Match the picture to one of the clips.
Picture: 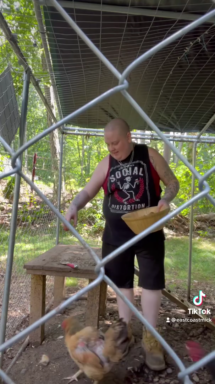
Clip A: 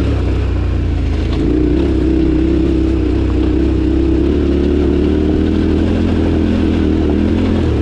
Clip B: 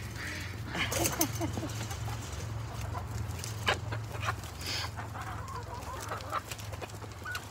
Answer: B